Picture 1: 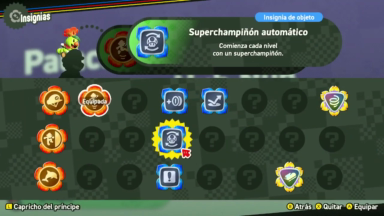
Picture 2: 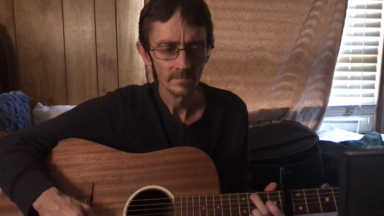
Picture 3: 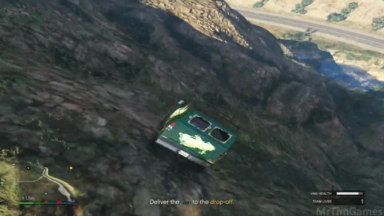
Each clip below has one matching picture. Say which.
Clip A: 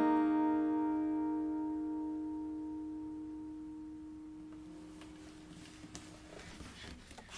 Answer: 2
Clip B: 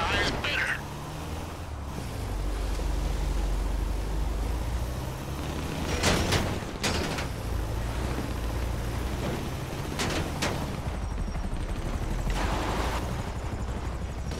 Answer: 3